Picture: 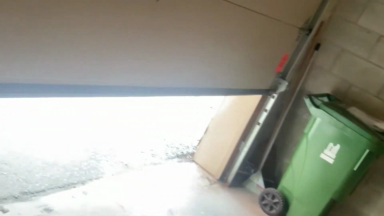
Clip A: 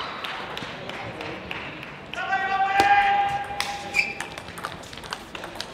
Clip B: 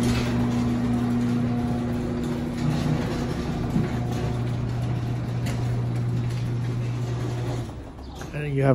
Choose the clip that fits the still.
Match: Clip B